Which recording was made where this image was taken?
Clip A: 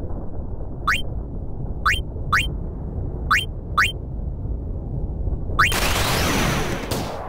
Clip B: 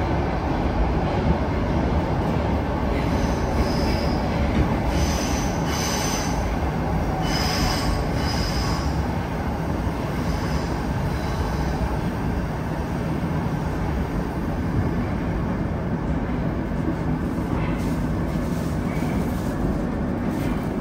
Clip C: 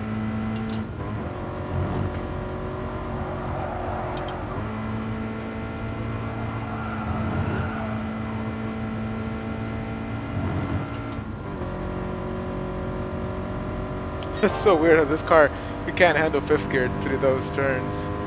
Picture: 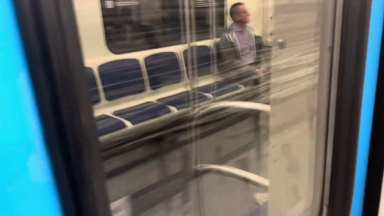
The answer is B